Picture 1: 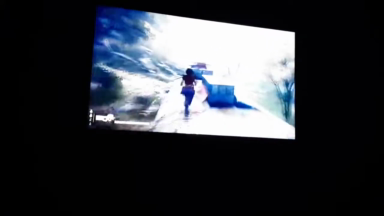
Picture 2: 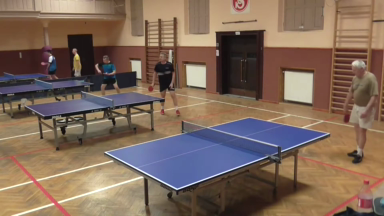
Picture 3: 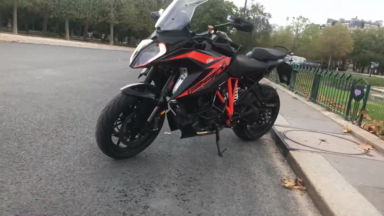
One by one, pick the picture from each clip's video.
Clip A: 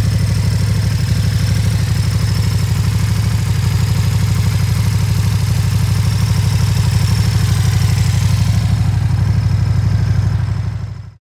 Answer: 3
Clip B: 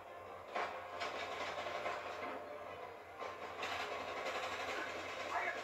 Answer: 1